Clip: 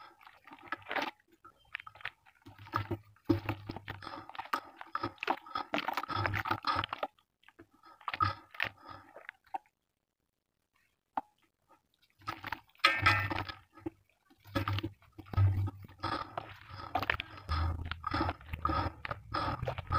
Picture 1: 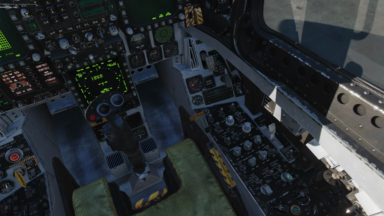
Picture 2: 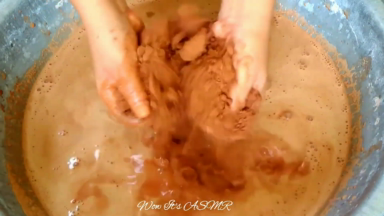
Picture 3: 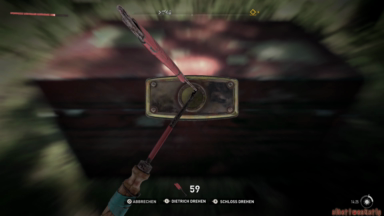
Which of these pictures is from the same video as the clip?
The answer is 2